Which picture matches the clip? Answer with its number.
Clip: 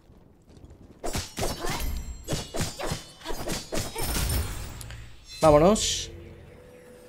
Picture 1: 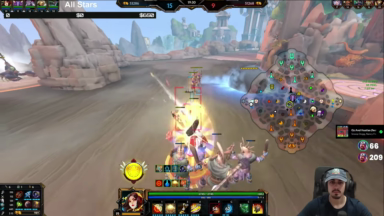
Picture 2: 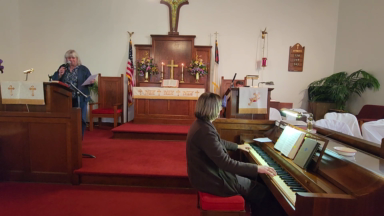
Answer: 1